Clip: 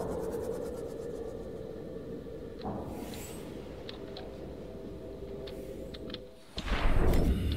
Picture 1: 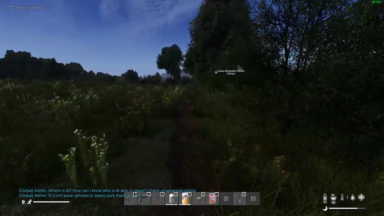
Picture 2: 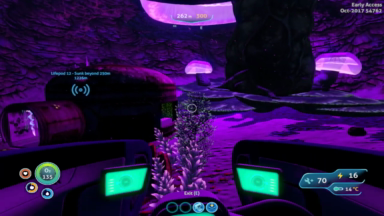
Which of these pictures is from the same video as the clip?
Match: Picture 2